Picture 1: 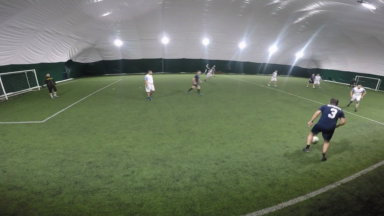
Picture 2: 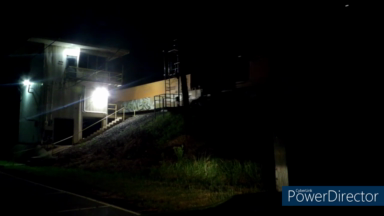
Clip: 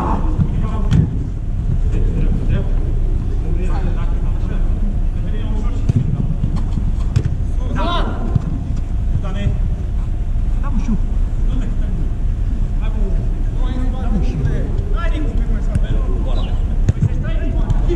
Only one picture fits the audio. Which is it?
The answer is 1